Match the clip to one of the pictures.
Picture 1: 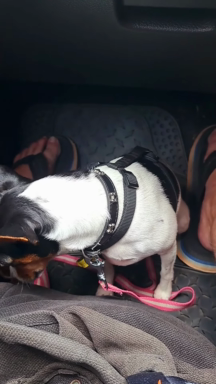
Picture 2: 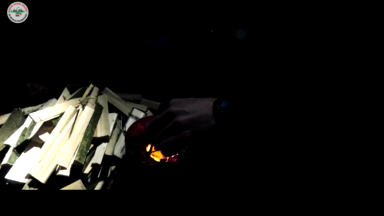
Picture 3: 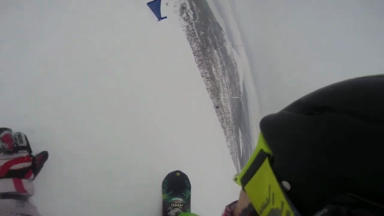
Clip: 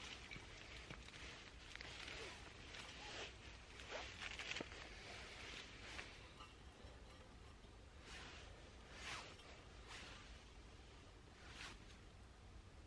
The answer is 2